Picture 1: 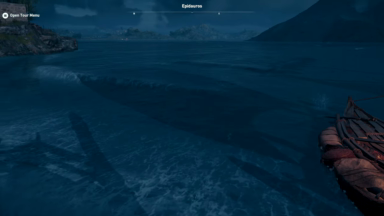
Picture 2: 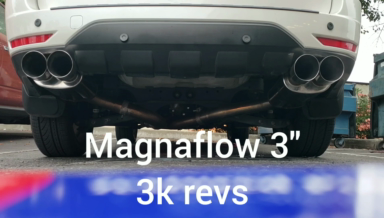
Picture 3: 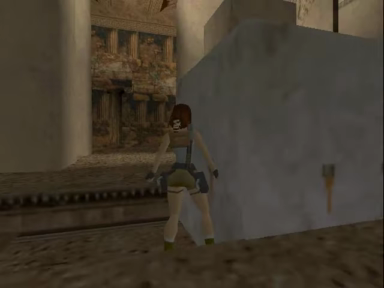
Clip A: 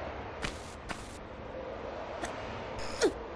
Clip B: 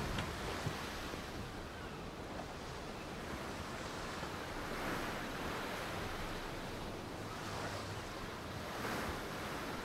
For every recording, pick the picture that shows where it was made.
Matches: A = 3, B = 1